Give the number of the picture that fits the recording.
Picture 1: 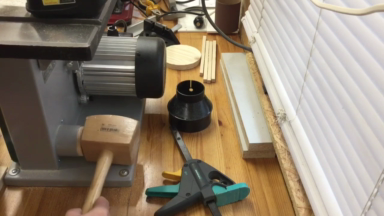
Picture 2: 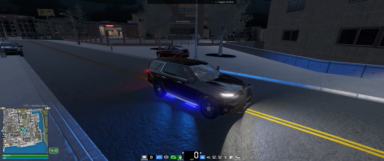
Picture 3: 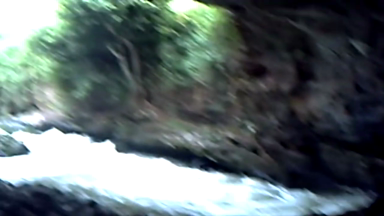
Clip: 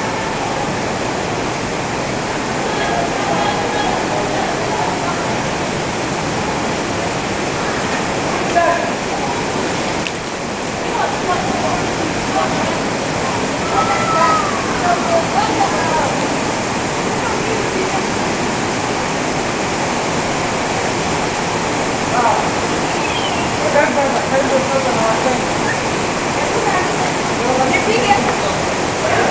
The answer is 3